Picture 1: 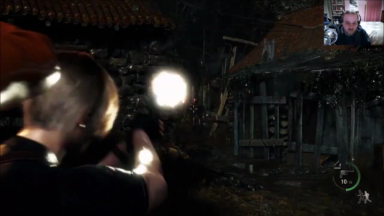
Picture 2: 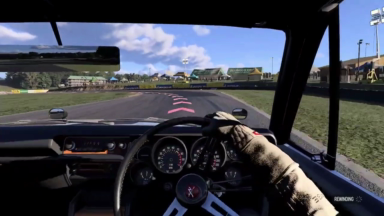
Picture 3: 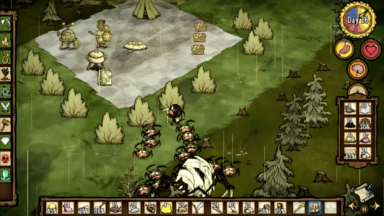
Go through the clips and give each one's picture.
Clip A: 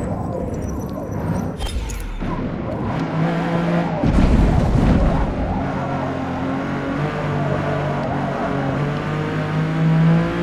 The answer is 2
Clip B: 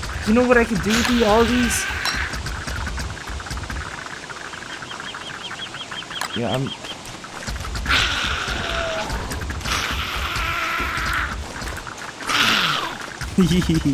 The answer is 3